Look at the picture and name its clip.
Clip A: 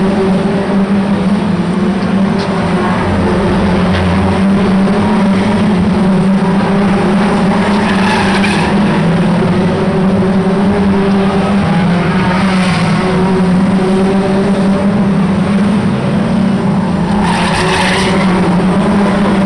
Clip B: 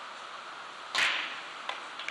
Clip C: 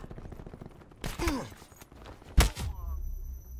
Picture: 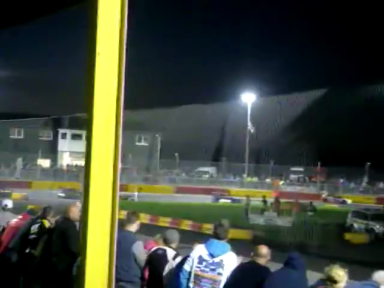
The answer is A